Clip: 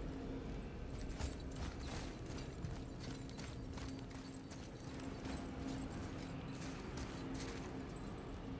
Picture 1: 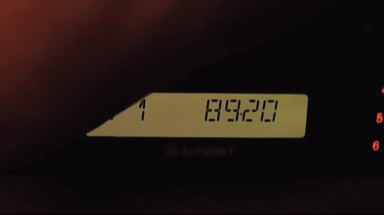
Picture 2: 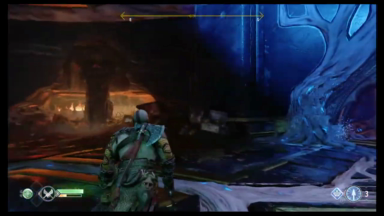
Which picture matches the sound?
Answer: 2